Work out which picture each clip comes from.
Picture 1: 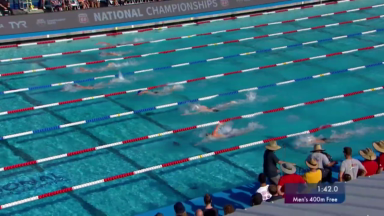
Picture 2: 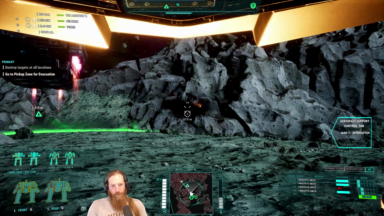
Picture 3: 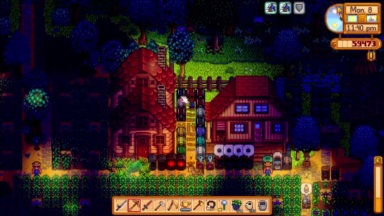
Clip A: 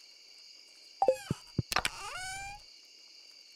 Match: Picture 3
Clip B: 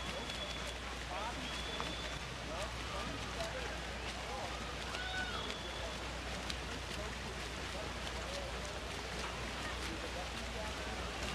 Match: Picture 1